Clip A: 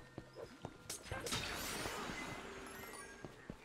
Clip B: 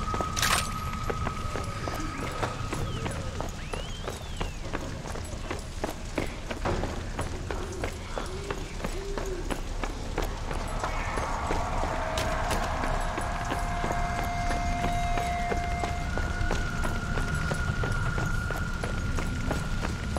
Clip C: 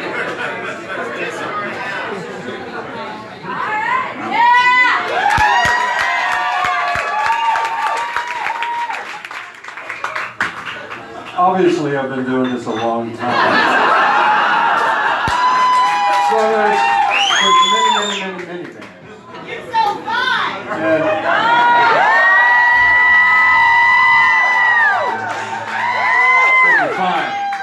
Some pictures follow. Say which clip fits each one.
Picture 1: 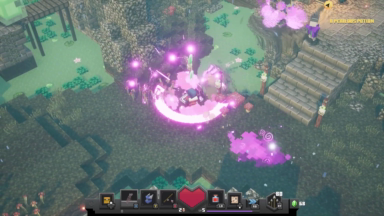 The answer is A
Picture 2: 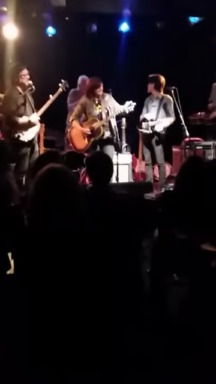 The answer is C